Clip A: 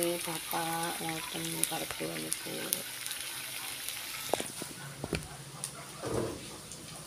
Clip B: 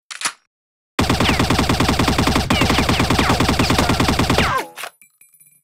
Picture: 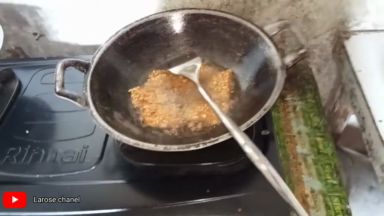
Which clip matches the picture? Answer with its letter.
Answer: A